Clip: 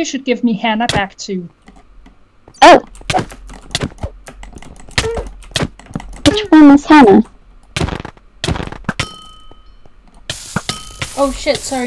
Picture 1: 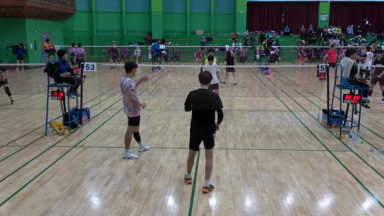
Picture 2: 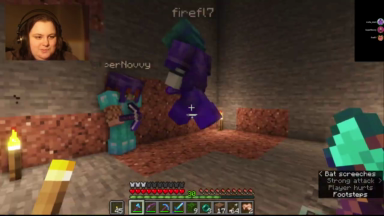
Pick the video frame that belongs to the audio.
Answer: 2